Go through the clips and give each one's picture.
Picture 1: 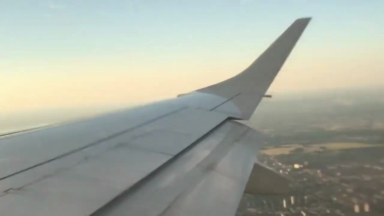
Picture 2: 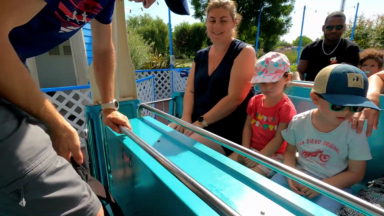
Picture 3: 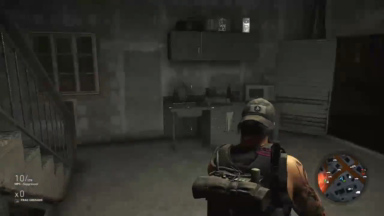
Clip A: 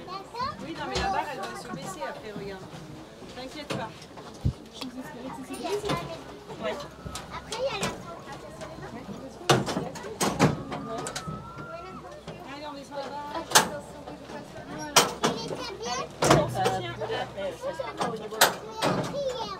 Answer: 2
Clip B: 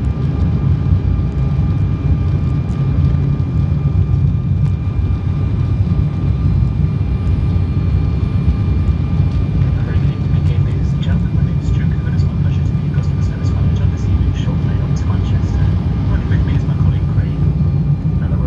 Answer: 1